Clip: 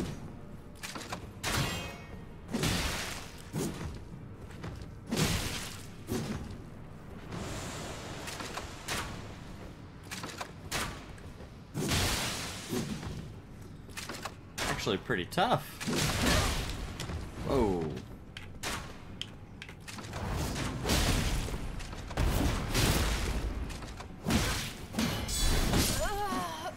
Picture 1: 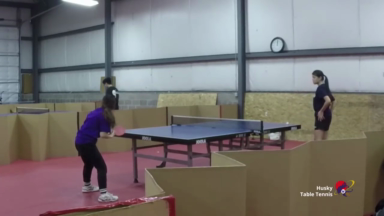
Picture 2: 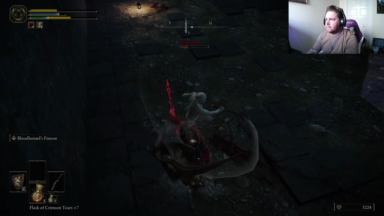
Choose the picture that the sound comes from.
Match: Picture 2